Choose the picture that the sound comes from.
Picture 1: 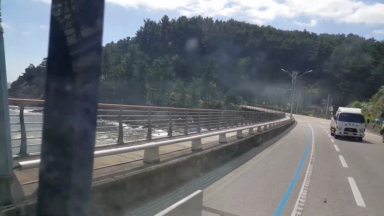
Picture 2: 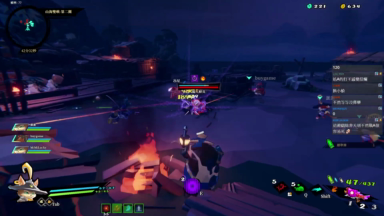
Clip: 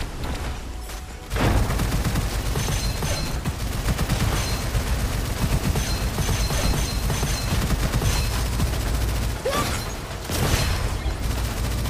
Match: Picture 2